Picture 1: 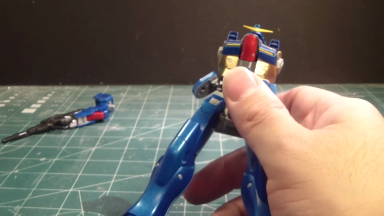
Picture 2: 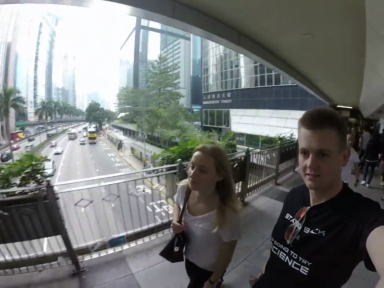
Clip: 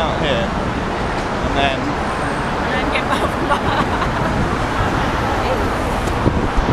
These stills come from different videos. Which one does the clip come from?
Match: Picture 2